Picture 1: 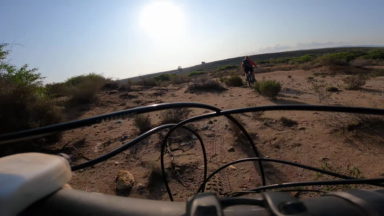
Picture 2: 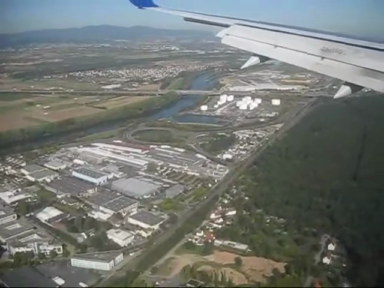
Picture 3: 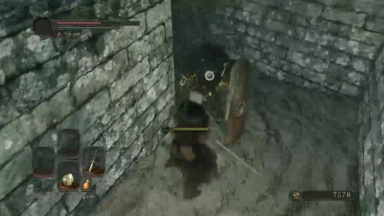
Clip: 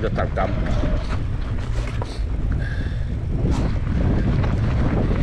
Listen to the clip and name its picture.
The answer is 1